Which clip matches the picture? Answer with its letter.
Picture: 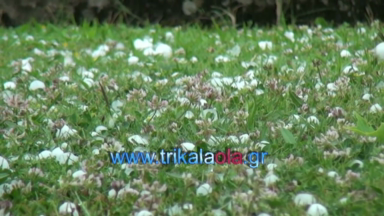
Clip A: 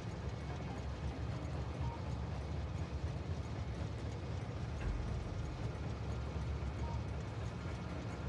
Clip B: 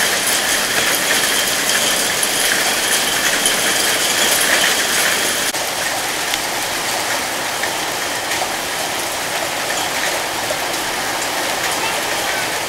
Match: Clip B